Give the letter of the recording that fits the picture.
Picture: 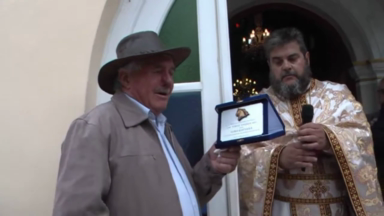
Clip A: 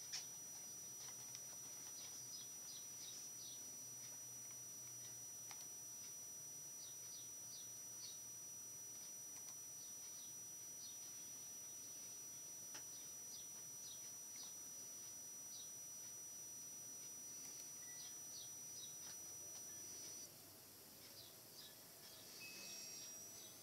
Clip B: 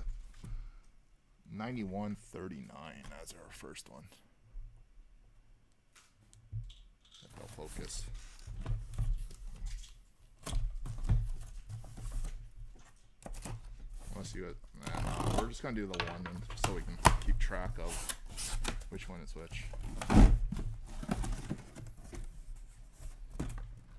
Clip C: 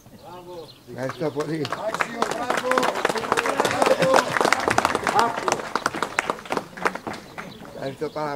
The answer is C